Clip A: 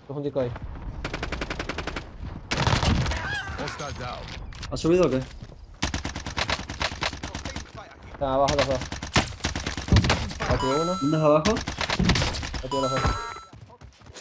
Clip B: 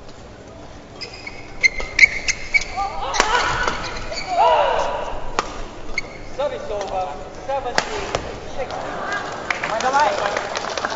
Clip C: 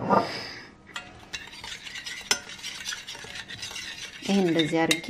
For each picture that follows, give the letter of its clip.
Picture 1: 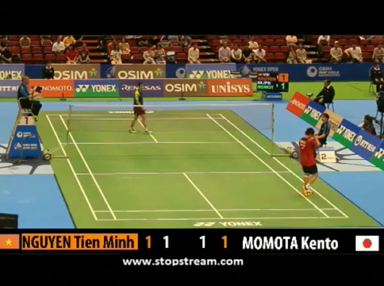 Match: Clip B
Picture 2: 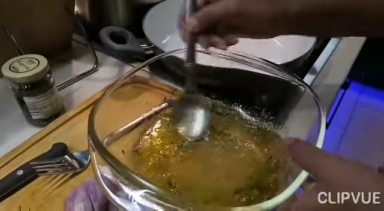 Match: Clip C